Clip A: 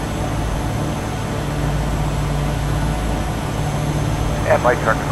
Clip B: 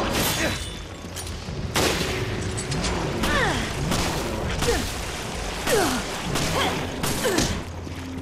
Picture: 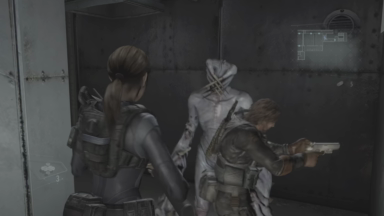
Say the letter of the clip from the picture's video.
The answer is B